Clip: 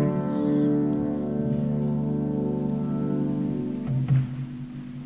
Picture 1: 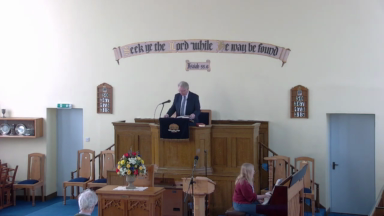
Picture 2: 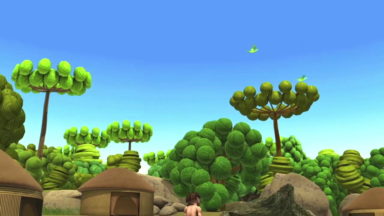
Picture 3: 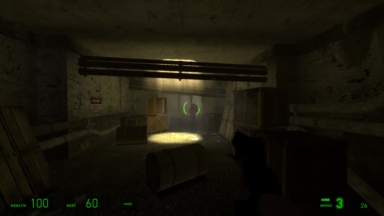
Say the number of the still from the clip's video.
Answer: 1